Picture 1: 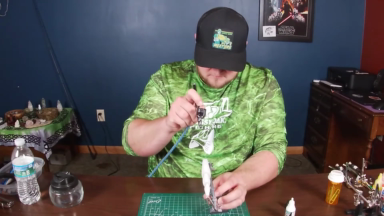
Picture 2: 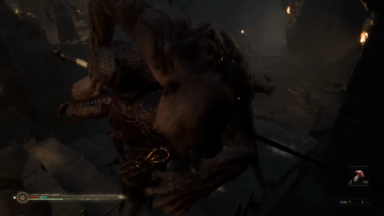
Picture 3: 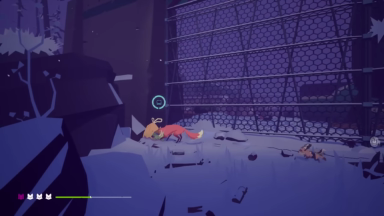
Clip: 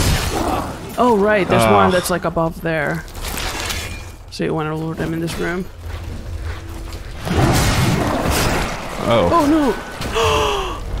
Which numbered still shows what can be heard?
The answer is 2